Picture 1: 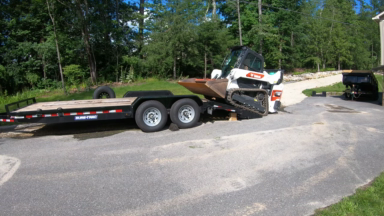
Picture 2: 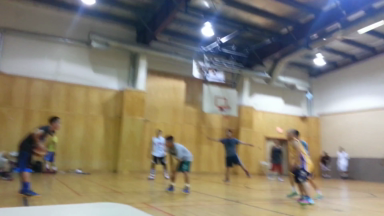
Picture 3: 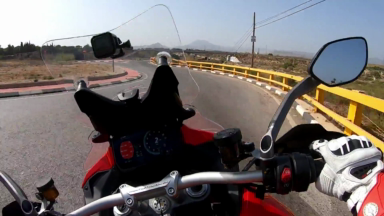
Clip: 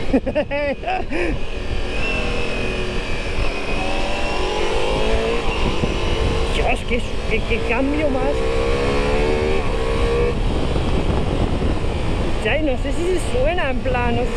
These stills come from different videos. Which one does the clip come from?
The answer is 3